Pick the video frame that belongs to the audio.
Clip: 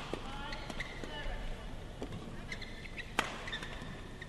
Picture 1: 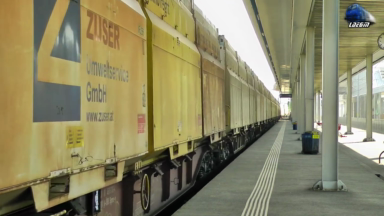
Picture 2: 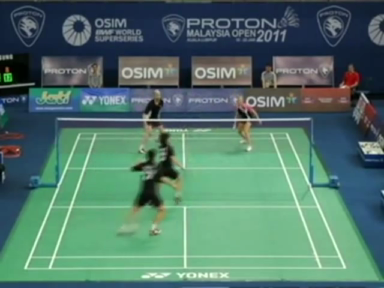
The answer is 2